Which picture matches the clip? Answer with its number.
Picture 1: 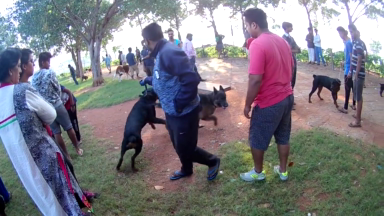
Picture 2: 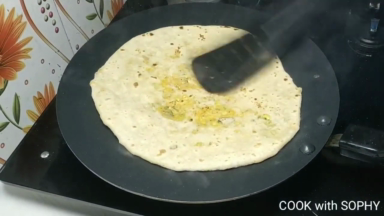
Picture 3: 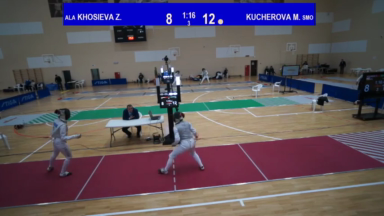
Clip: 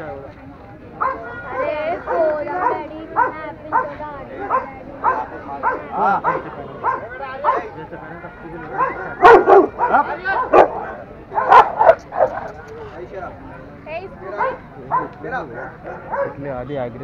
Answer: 1